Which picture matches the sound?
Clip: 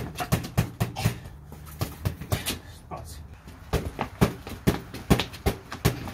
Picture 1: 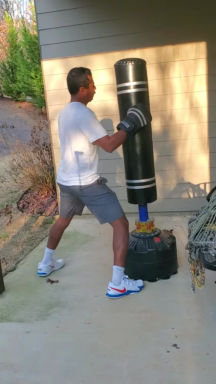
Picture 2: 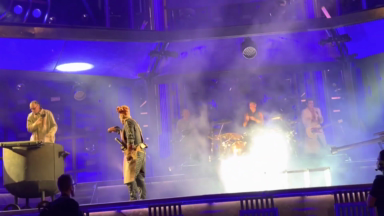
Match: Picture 1